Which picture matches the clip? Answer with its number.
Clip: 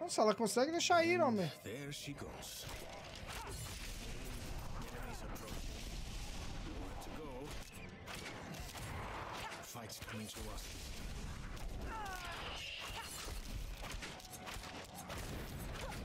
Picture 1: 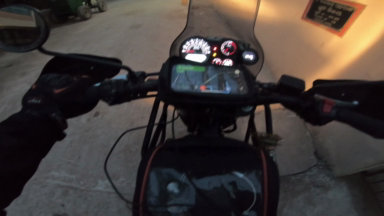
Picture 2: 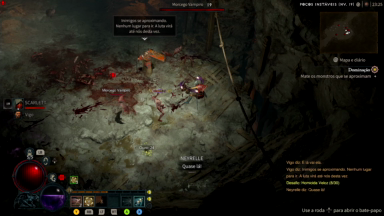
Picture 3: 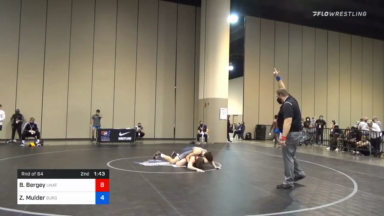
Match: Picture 2